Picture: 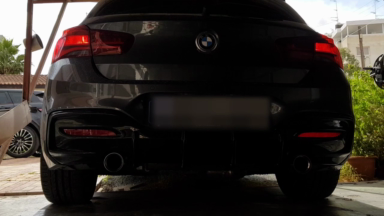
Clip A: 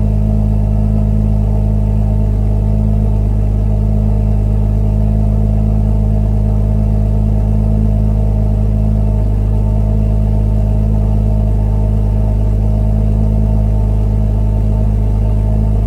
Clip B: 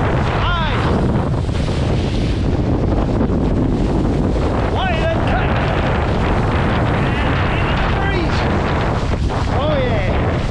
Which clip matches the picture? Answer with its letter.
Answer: A